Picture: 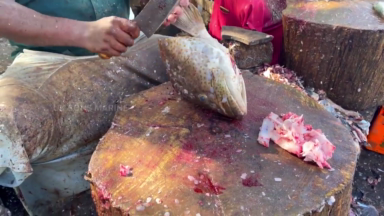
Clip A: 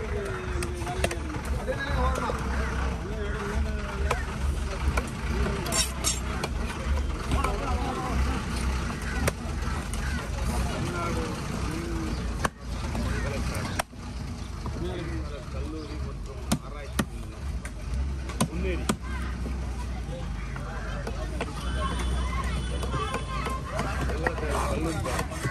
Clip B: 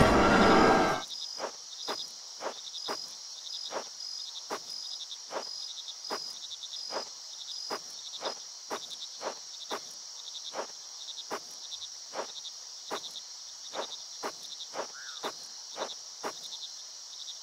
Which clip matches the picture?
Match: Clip A